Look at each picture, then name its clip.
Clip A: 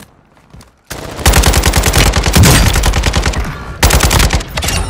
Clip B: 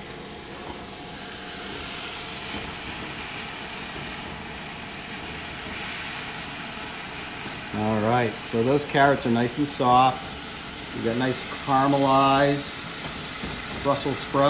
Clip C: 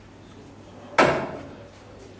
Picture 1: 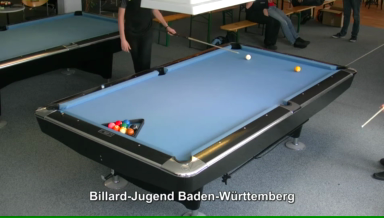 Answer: C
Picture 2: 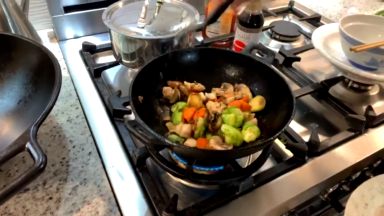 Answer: B